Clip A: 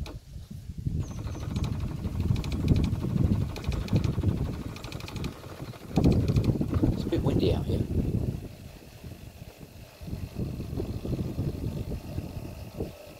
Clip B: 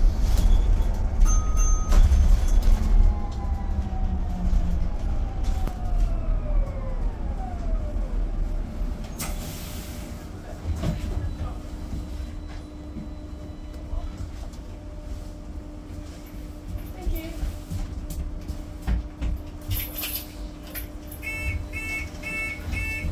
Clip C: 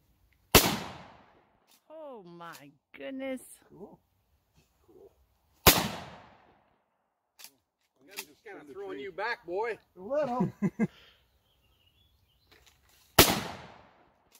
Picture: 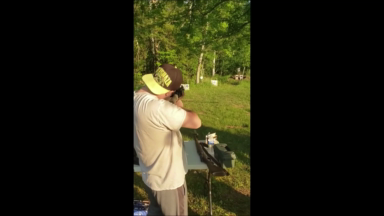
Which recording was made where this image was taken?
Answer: C